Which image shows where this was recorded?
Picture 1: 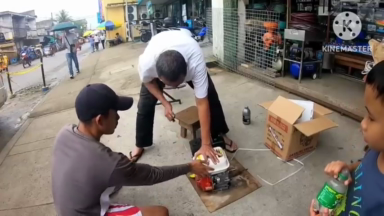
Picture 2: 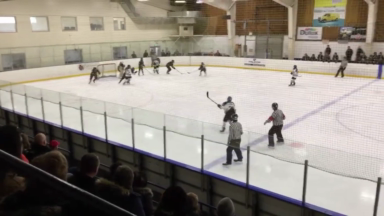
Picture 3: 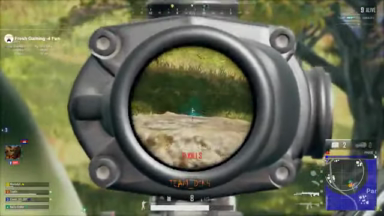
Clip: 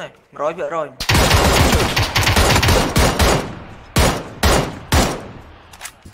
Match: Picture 3